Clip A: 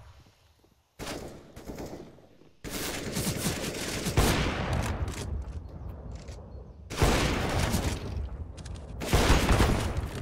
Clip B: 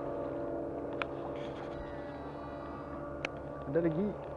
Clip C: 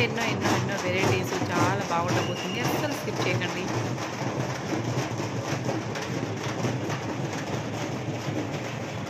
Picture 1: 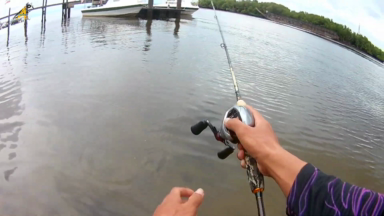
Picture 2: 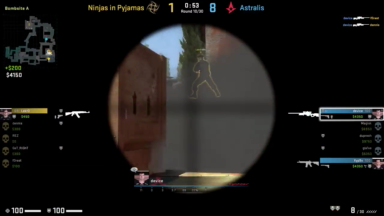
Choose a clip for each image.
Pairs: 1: B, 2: A